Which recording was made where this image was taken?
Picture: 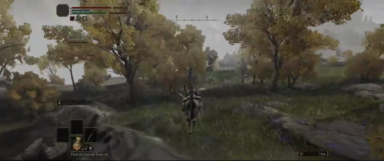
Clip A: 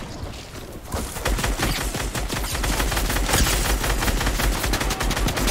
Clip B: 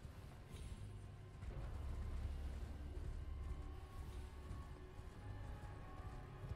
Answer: B